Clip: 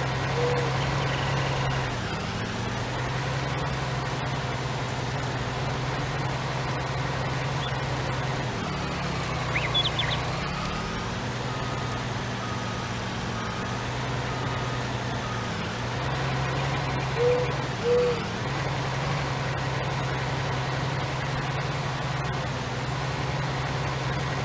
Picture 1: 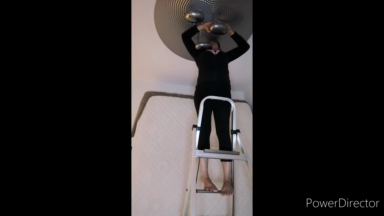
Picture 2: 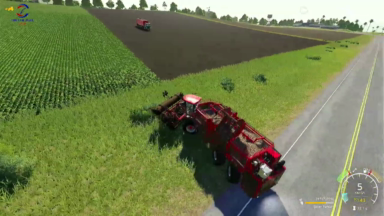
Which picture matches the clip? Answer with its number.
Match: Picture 2